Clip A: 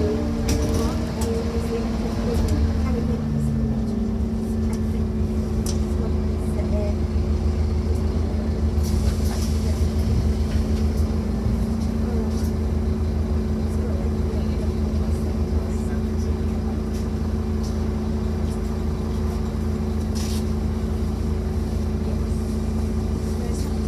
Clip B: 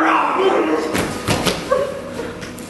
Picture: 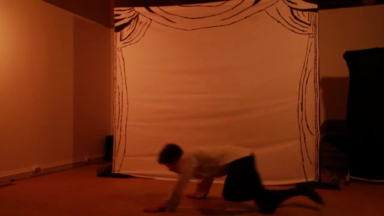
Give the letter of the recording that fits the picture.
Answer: B